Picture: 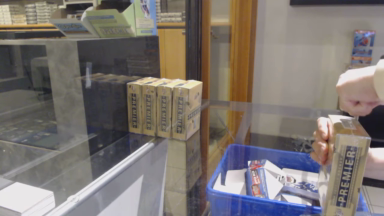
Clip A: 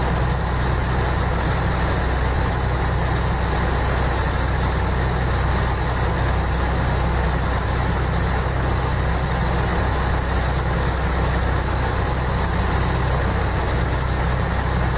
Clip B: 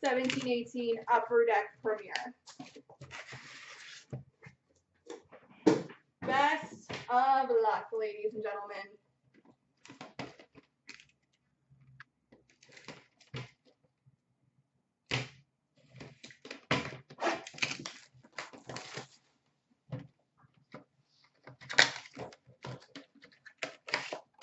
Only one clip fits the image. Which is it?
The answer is B